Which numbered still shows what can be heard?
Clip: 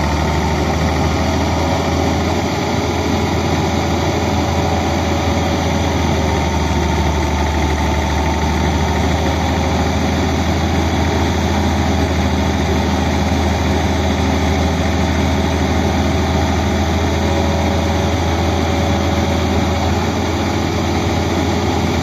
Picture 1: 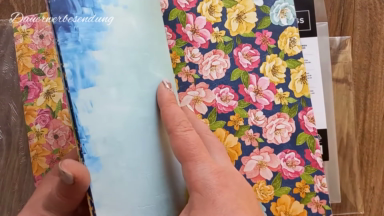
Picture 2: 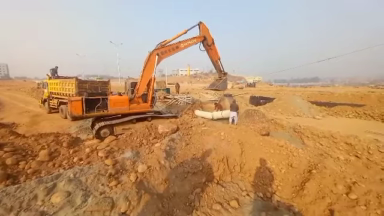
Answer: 2